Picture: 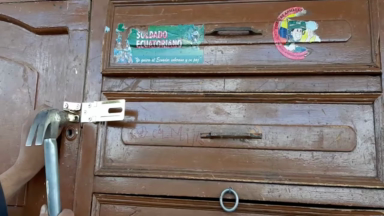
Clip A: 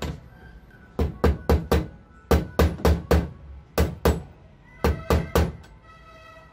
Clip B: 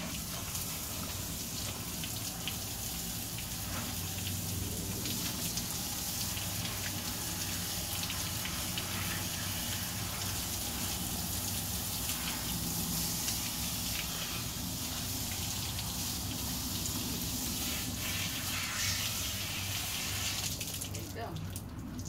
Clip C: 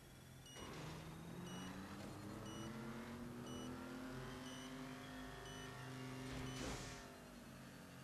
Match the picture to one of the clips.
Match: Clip A